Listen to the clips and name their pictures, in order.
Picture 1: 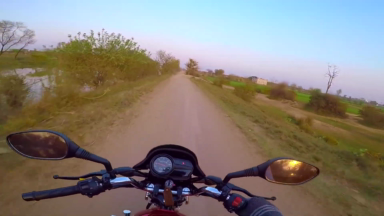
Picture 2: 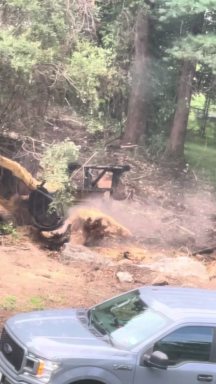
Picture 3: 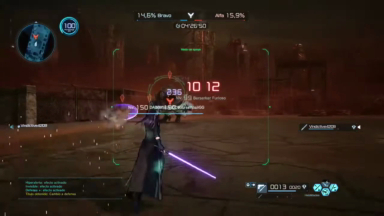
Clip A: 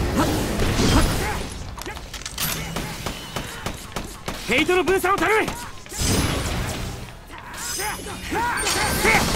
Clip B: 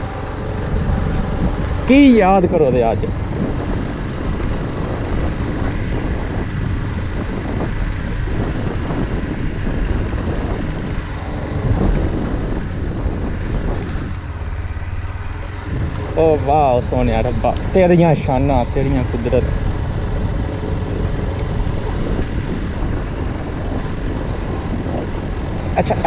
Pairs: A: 3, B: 1